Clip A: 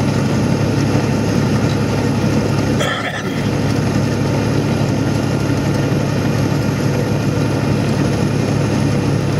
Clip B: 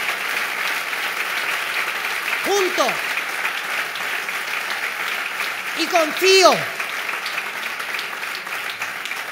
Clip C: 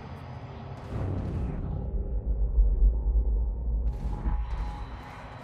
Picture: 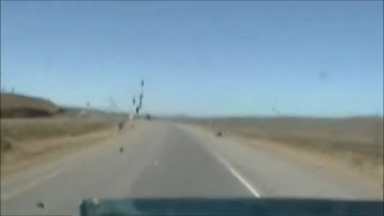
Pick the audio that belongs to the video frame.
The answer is A